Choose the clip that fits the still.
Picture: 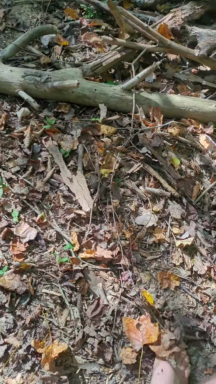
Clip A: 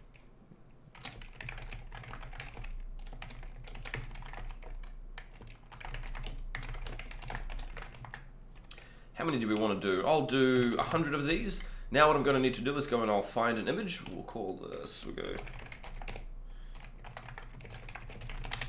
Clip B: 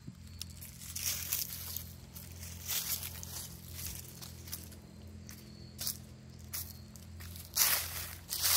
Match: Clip B